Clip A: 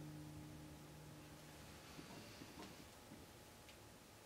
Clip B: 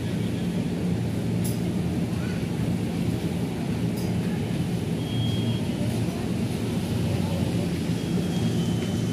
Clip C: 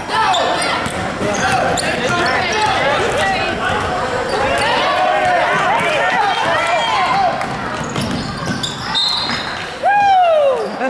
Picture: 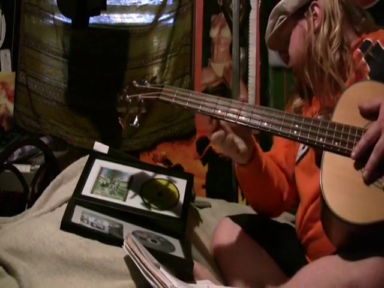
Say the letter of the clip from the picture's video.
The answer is A